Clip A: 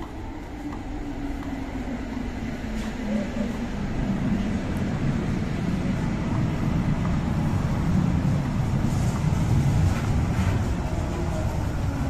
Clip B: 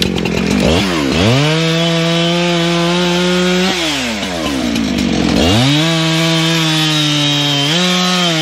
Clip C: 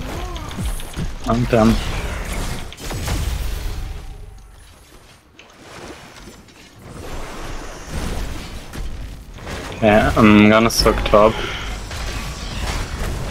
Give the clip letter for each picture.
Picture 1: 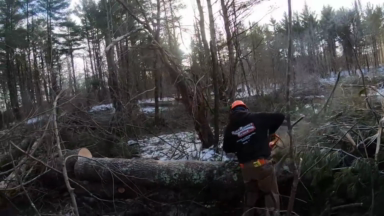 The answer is B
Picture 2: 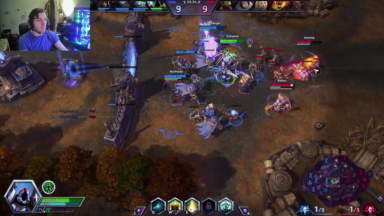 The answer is C